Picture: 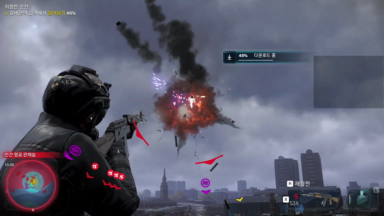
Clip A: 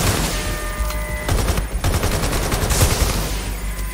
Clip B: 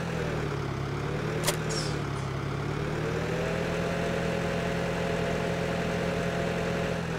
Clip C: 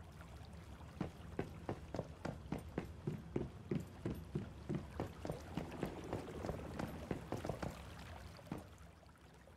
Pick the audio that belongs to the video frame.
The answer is A